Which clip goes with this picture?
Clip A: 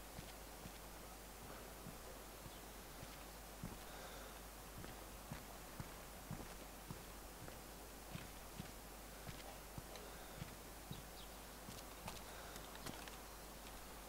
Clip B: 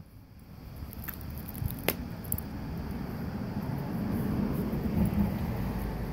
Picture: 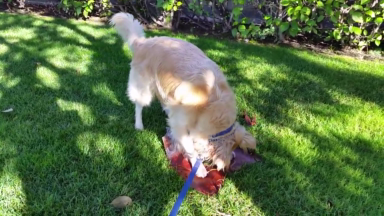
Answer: B